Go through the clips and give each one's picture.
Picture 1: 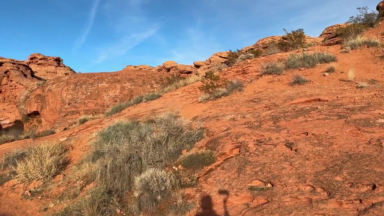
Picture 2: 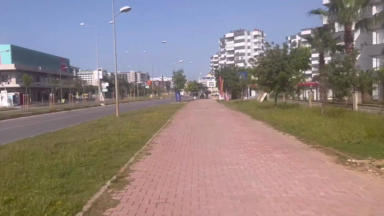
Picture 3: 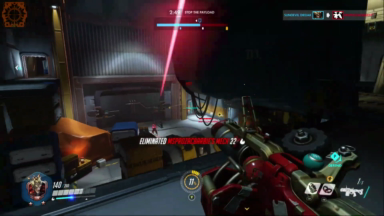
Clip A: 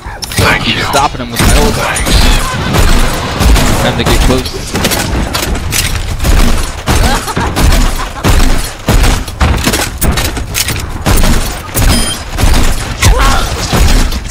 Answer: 3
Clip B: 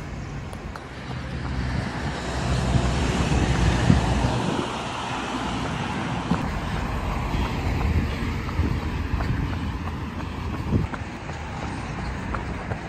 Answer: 2